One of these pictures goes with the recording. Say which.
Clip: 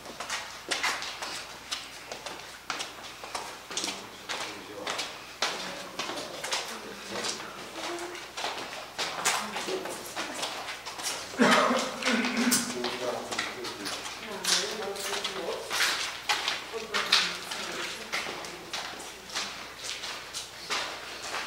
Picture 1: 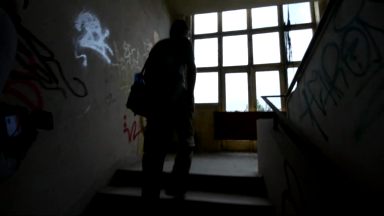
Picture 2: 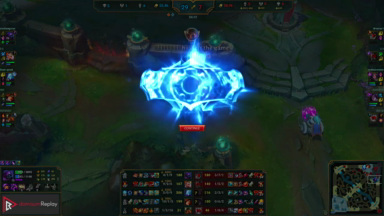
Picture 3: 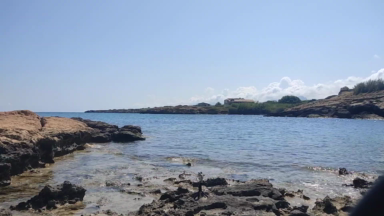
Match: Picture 1